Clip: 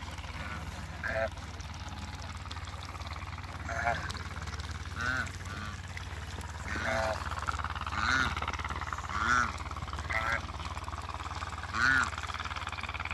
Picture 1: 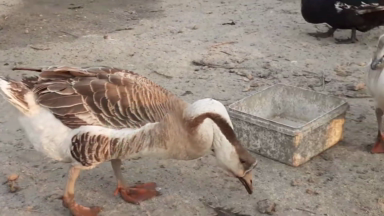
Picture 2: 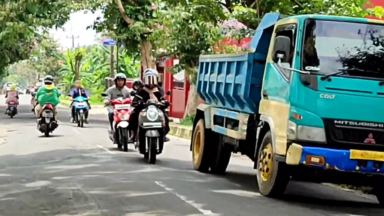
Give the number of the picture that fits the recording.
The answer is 1